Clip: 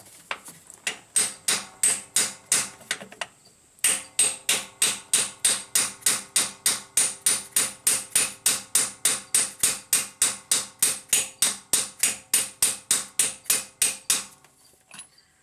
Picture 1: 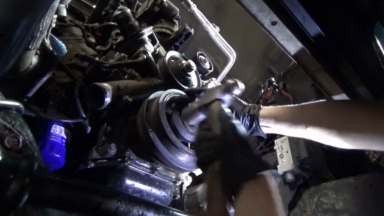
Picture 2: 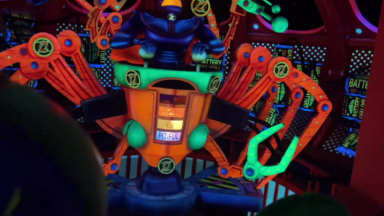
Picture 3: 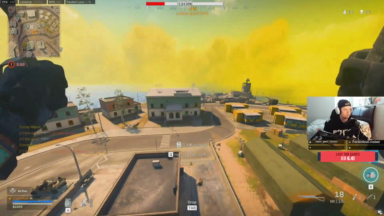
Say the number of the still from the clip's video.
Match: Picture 1